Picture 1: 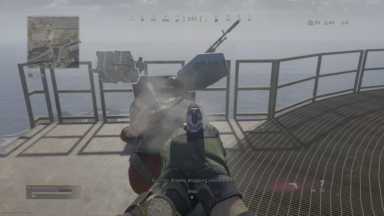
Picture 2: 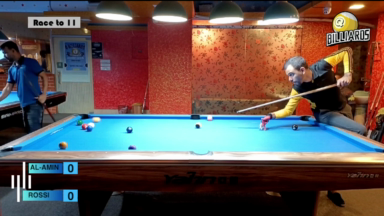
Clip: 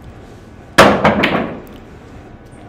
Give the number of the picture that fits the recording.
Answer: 2